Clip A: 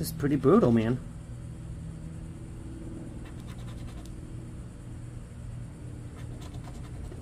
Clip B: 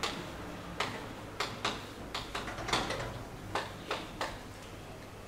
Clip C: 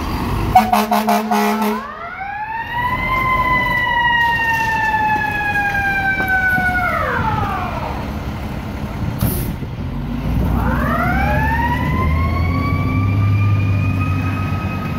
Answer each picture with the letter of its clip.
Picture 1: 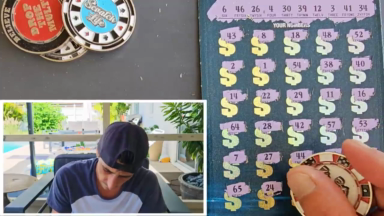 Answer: A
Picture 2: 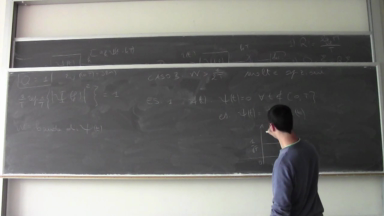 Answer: B